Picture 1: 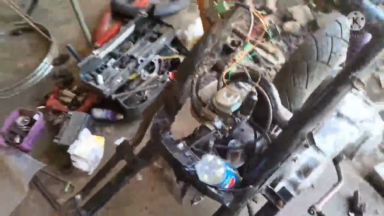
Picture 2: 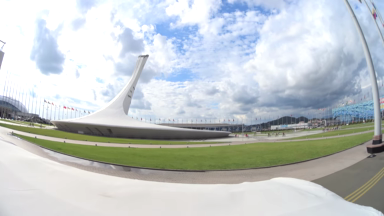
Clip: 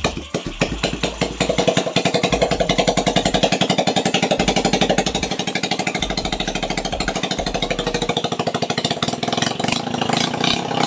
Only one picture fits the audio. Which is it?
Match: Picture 1